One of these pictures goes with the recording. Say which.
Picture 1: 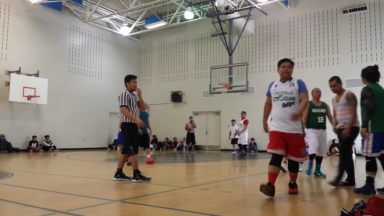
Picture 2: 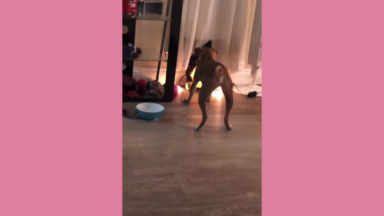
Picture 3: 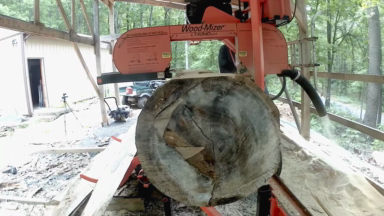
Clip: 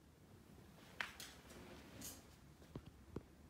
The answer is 2